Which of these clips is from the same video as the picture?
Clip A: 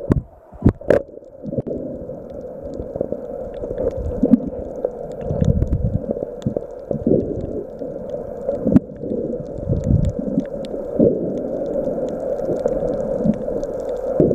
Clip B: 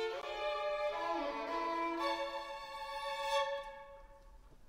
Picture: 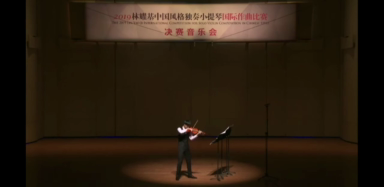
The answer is B